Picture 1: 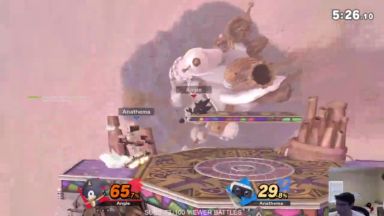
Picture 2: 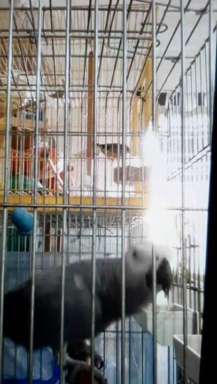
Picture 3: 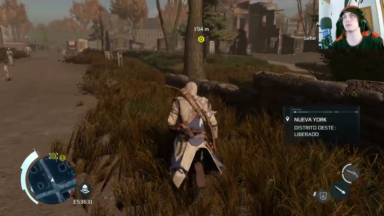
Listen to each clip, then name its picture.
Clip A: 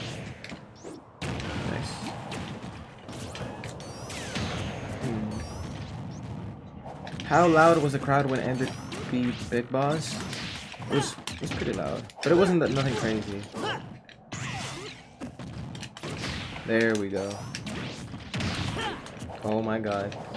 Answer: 1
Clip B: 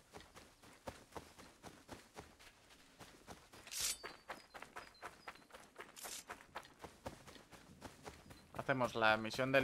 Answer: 3